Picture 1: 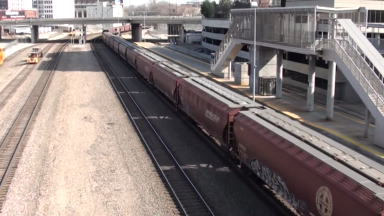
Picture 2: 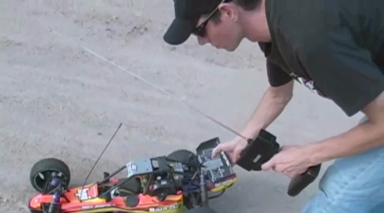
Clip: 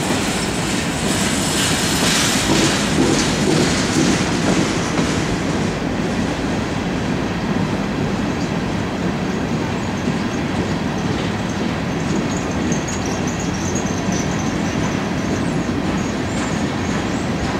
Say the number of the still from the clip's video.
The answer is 1